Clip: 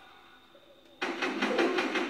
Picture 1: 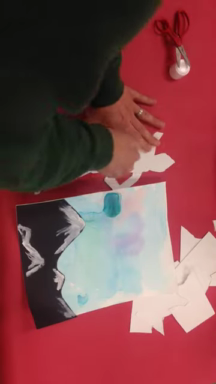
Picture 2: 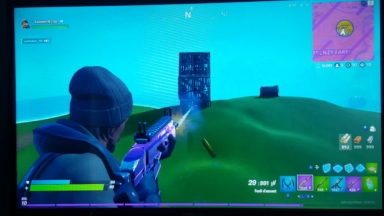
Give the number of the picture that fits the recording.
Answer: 2